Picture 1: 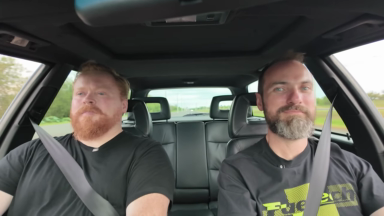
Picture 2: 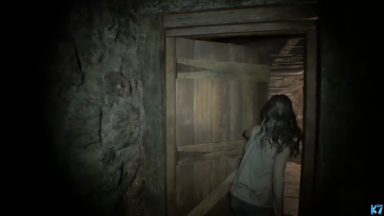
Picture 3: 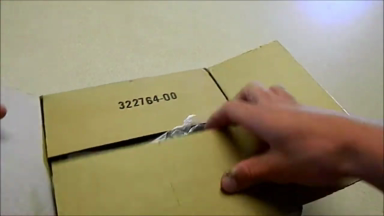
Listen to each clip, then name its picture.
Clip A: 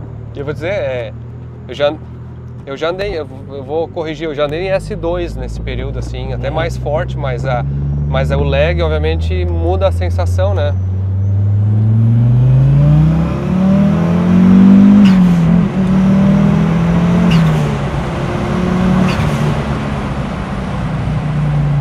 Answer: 1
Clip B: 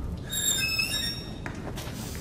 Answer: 2